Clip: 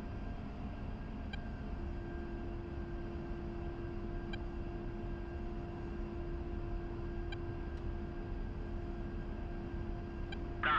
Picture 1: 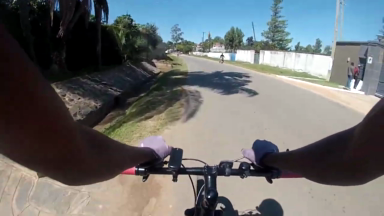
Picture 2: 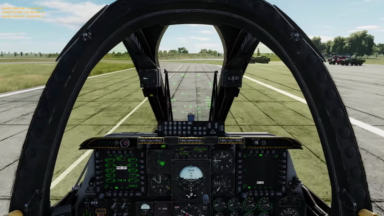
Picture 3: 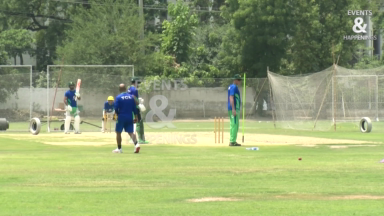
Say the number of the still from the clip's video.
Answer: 2